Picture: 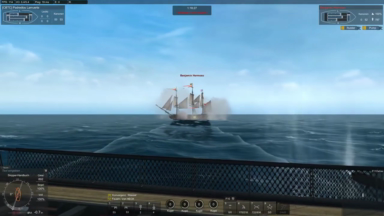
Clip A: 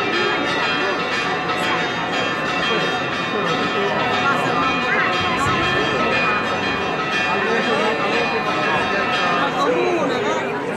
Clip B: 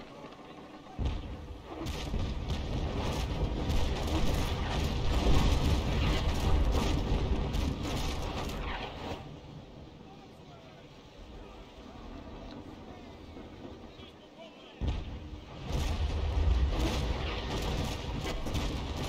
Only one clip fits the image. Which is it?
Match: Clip B